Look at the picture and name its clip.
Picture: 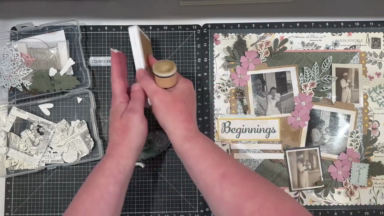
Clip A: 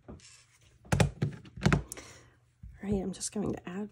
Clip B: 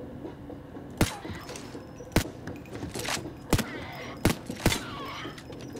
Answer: A